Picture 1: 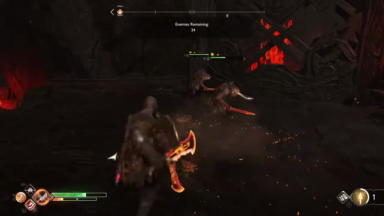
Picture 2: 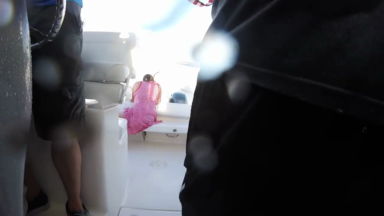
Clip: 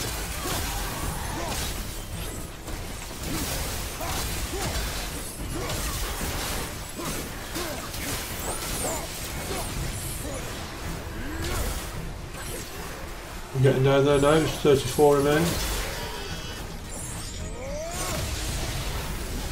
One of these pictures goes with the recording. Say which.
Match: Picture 1